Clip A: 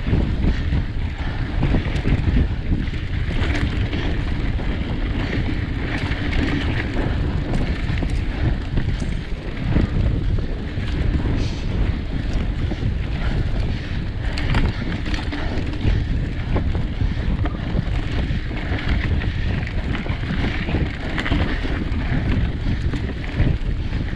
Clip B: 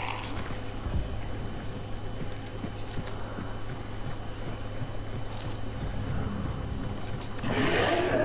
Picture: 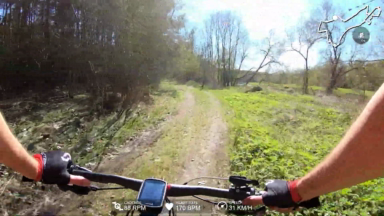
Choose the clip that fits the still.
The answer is A